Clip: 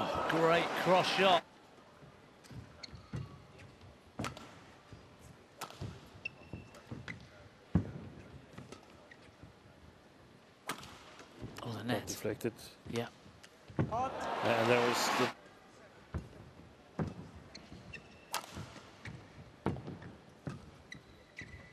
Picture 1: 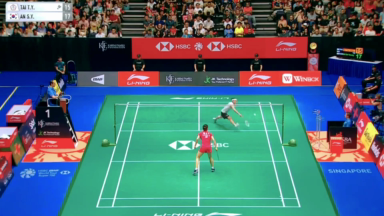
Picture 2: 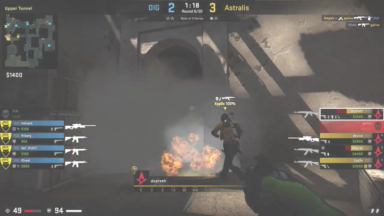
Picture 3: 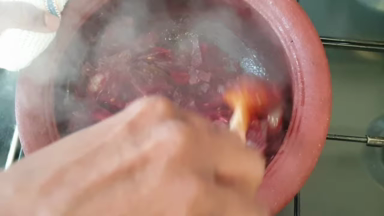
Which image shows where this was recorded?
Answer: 1